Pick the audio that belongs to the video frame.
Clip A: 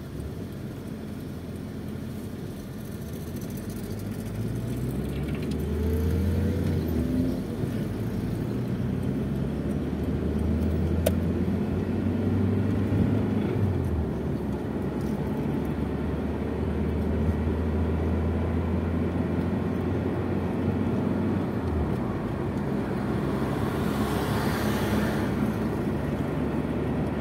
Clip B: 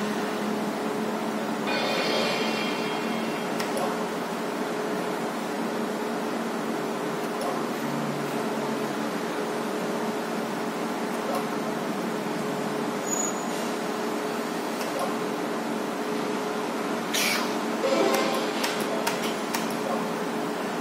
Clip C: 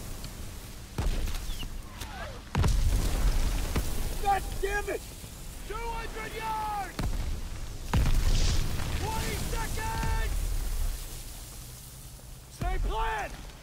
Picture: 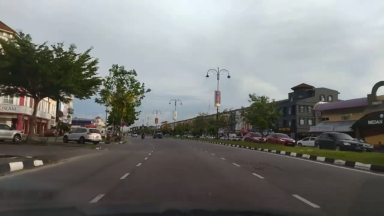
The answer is A